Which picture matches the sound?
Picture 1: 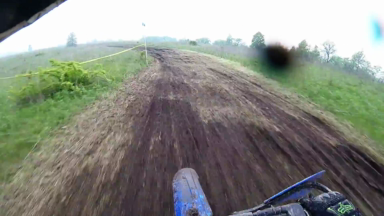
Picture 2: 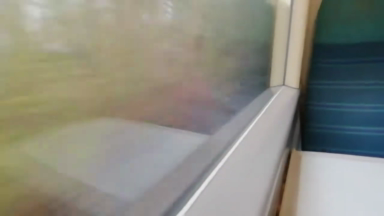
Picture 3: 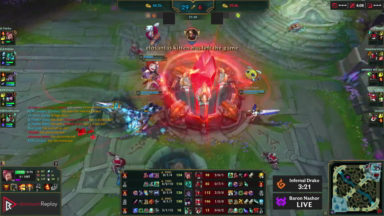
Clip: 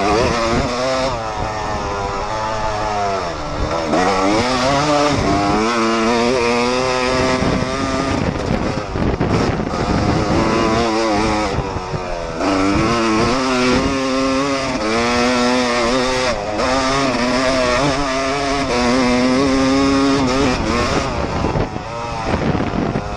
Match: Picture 1